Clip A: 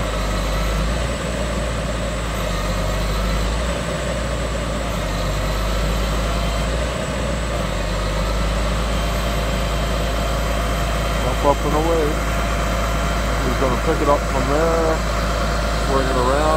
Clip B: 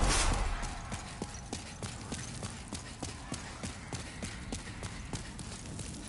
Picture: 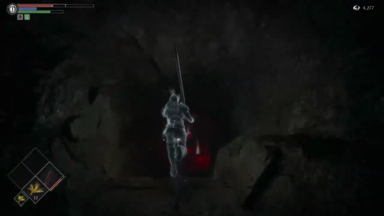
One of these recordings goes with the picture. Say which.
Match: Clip B